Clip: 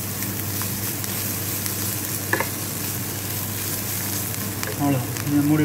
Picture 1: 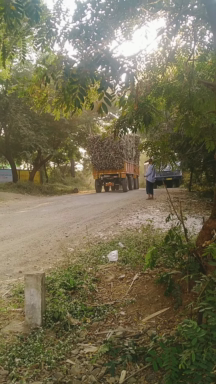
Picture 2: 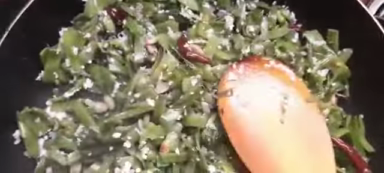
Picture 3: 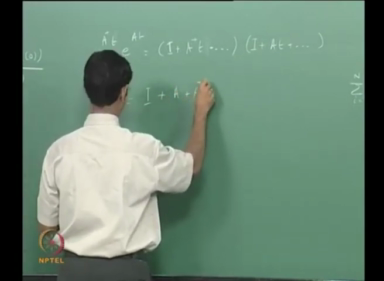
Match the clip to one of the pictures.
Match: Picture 2